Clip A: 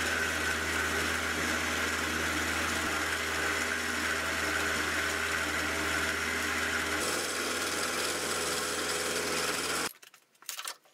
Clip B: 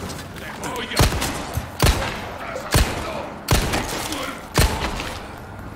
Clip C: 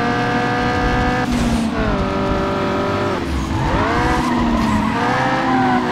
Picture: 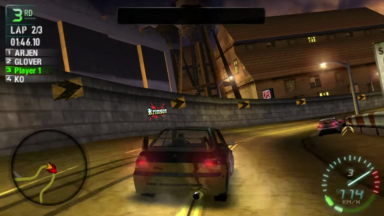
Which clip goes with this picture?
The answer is C